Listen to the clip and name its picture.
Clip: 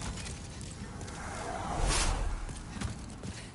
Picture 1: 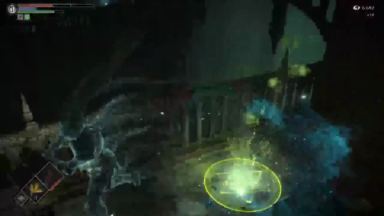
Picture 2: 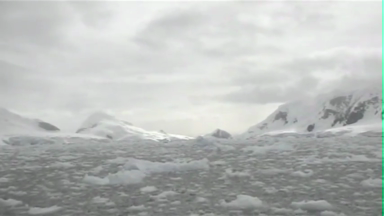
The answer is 1